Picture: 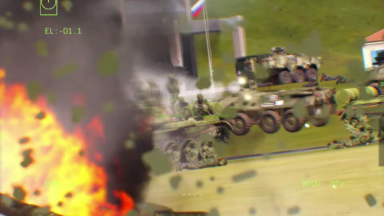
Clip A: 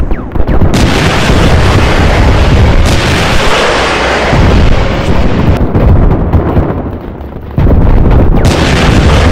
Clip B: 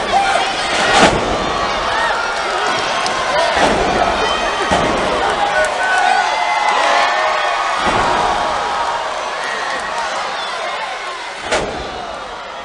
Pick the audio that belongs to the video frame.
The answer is A